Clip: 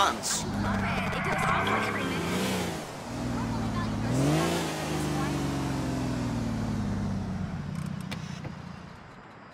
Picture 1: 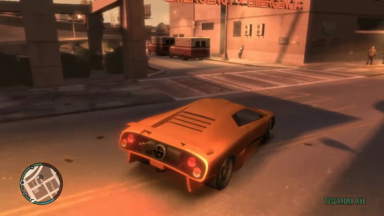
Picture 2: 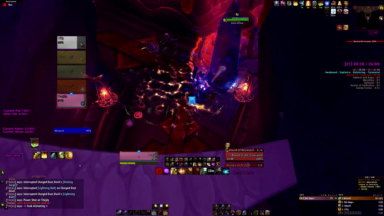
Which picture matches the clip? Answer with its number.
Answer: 1